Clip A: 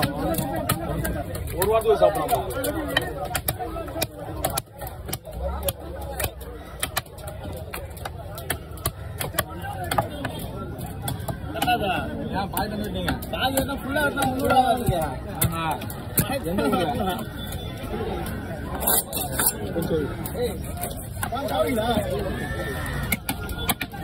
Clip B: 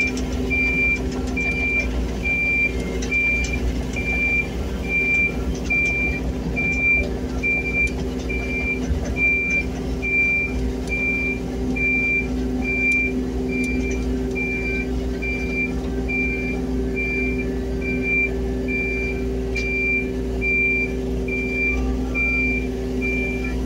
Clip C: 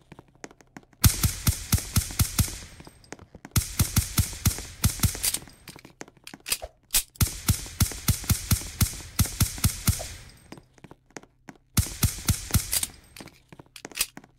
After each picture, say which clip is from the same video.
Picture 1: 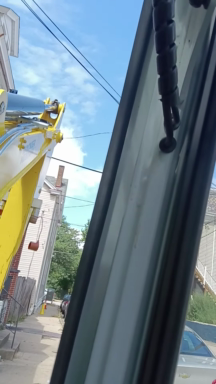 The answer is B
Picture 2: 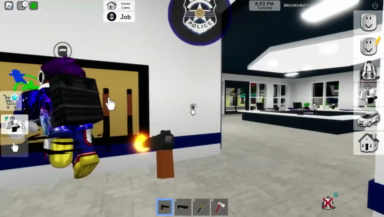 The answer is C